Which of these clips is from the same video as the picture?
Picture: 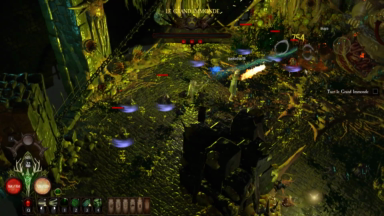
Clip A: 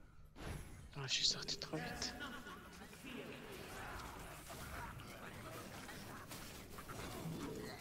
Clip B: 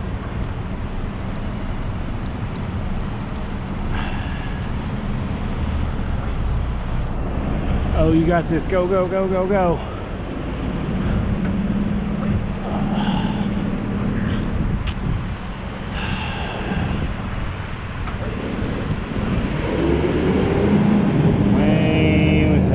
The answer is A